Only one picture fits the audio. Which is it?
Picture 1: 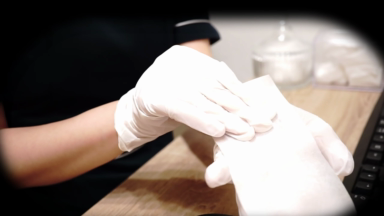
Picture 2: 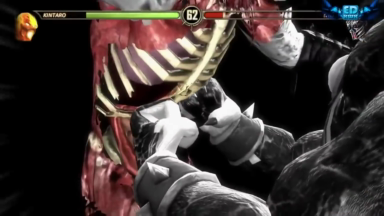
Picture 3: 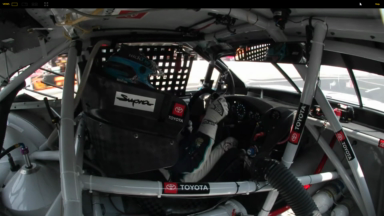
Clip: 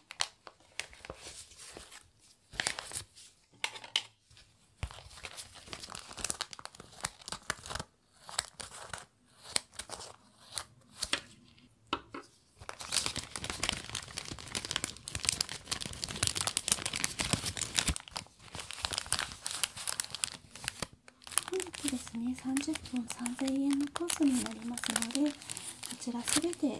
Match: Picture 1